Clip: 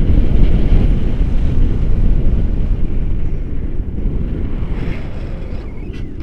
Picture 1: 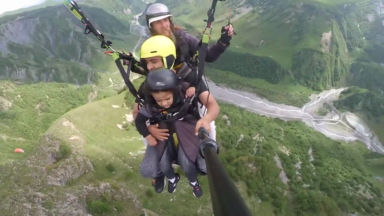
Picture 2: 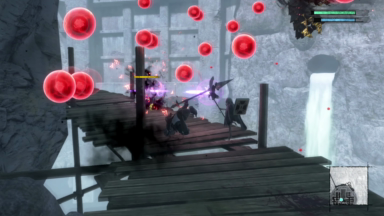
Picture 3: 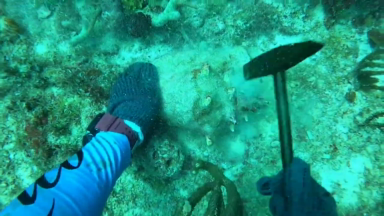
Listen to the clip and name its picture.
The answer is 1